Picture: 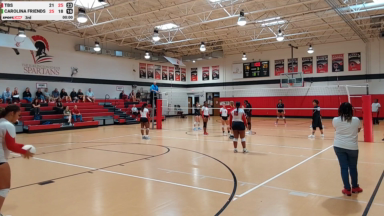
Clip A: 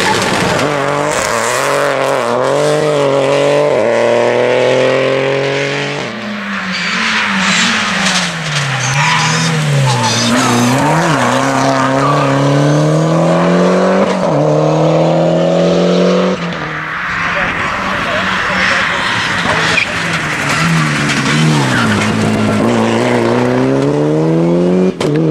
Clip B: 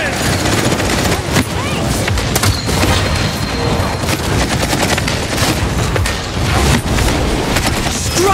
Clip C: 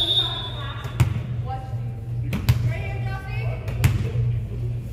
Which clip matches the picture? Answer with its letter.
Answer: C